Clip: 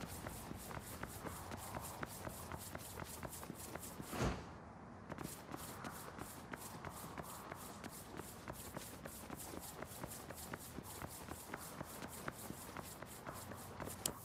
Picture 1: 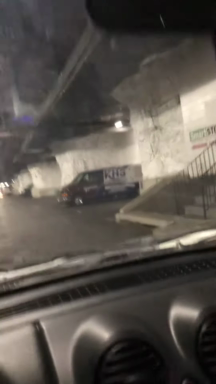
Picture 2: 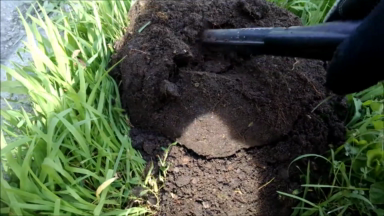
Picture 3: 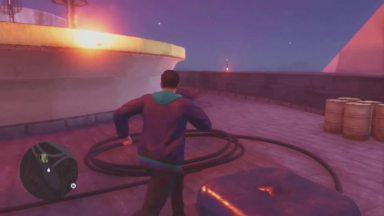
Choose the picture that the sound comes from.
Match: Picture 3